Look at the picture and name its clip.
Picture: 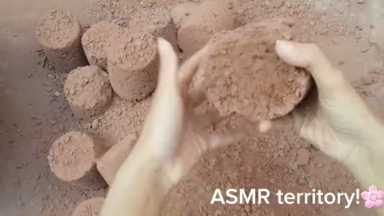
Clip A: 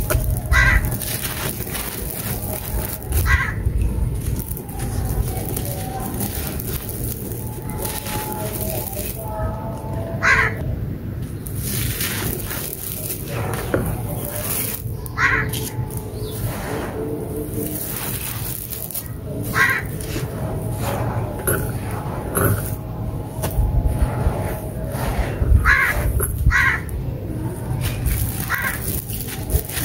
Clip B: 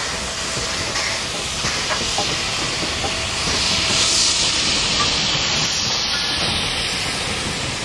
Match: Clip A